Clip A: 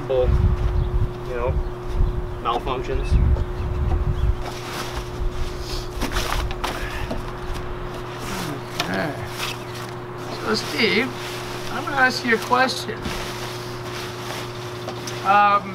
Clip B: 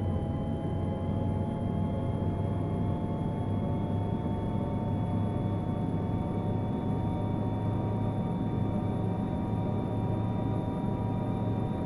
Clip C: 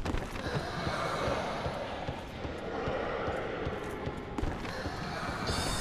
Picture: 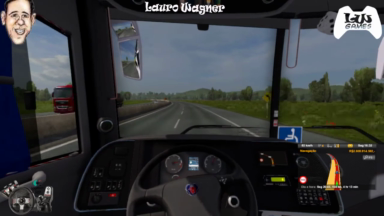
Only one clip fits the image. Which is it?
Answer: B